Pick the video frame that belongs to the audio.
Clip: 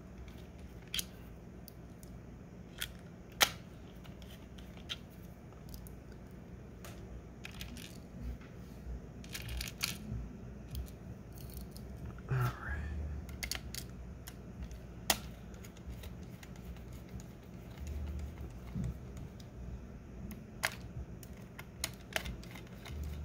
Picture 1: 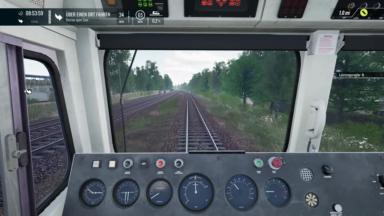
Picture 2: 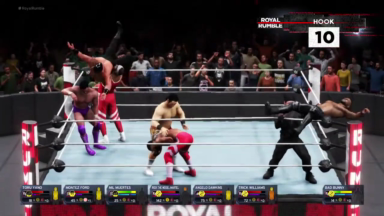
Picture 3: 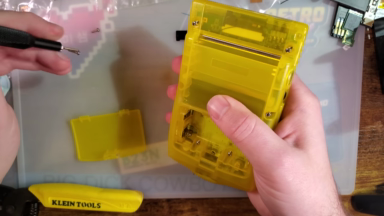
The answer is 3